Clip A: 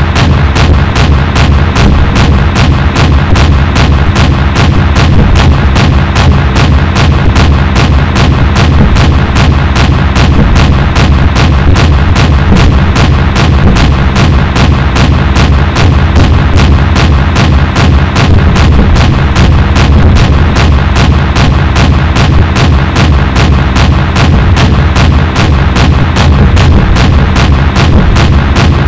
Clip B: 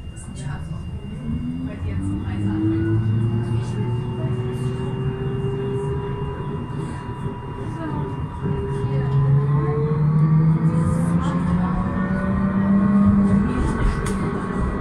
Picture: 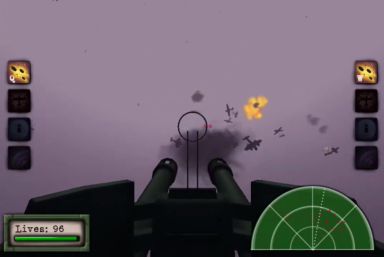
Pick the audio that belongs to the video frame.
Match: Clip A